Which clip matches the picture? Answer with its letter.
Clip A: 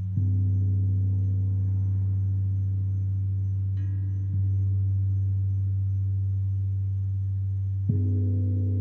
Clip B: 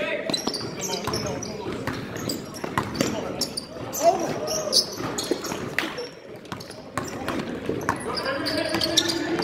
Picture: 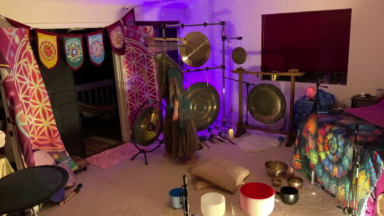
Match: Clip A